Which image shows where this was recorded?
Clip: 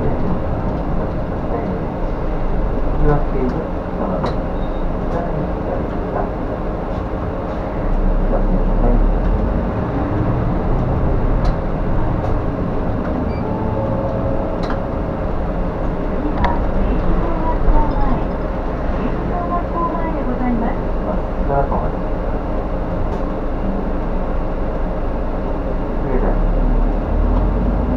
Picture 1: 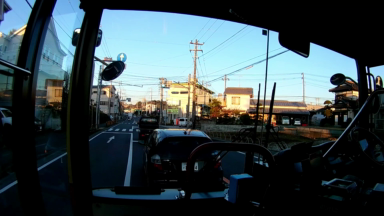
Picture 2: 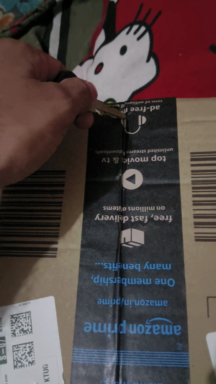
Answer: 1